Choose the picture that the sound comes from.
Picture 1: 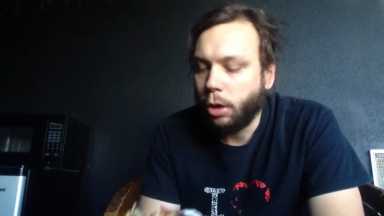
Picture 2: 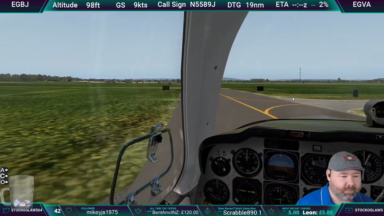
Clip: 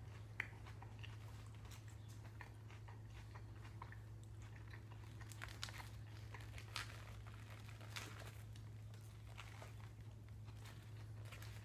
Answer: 1